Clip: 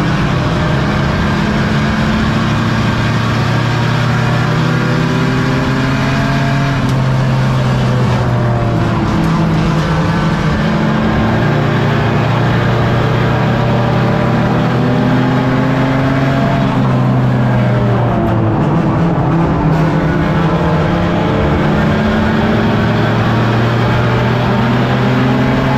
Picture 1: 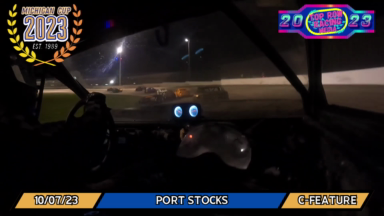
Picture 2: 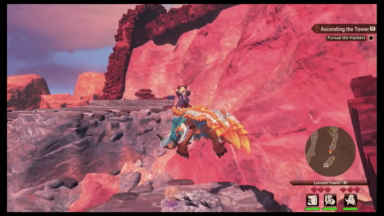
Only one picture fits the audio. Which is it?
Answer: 1